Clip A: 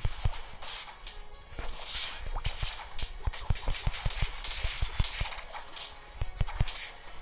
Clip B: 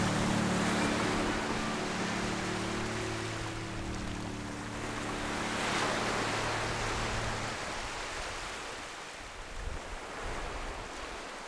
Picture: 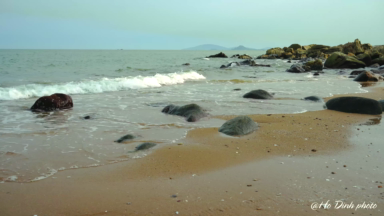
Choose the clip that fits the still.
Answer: B